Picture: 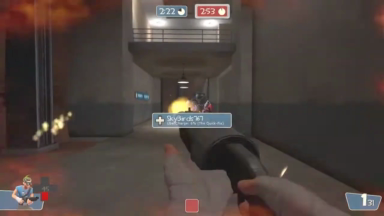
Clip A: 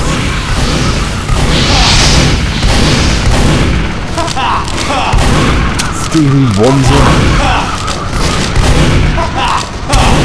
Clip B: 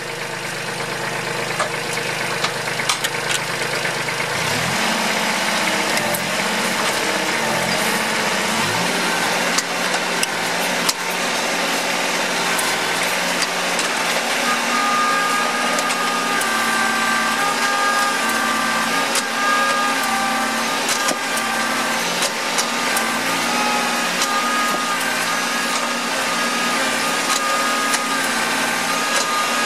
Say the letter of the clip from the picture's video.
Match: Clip A